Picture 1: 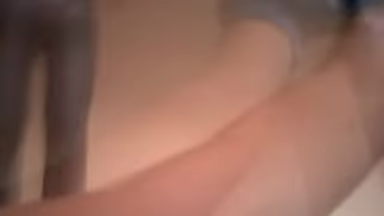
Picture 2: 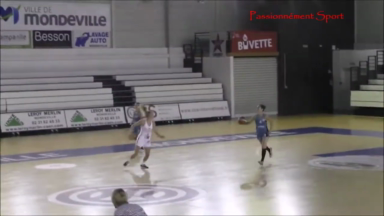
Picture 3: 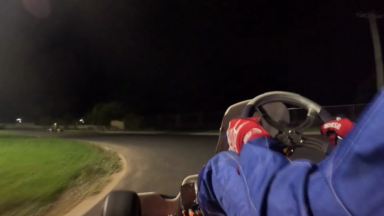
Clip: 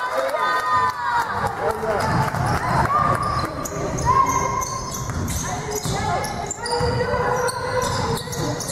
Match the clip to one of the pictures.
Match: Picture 2